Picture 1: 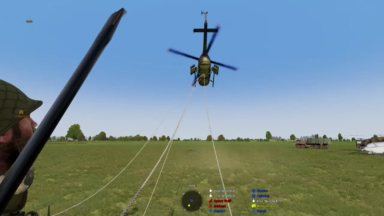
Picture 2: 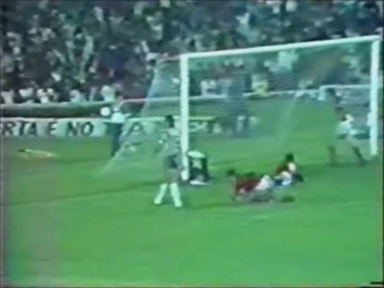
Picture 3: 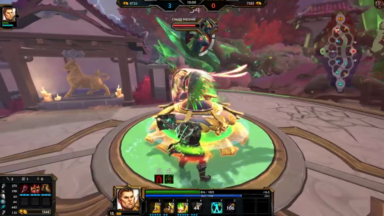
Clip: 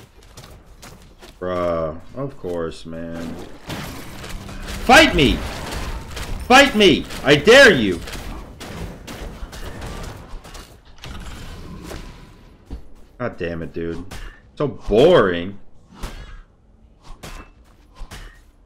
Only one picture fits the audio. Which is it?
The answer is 3